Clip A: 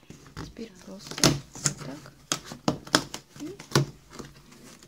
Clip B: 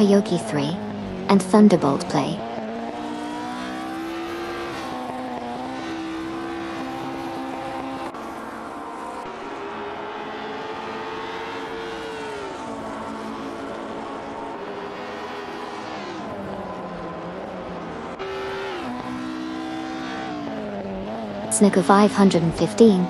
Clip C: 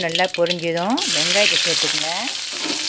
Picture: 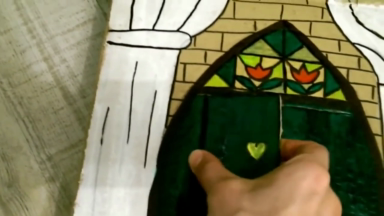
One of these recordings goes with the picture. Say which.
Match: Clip A